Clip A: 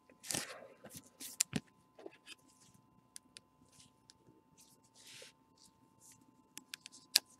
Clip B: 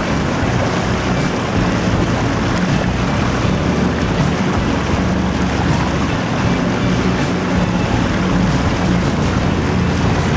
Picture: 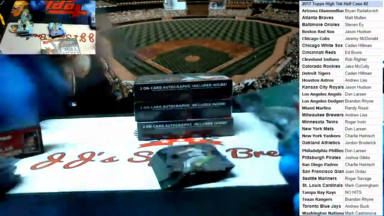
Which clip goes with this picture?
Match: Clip A